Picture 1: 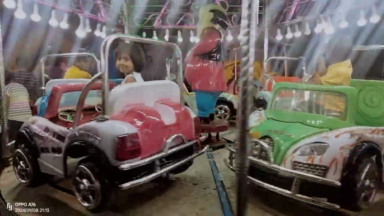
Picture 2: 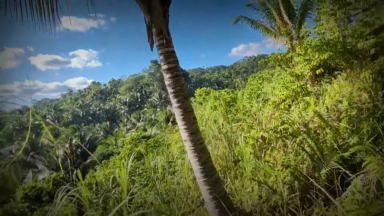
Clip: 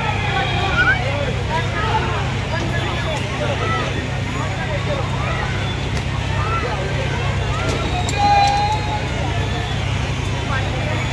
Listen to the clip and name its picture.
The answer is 1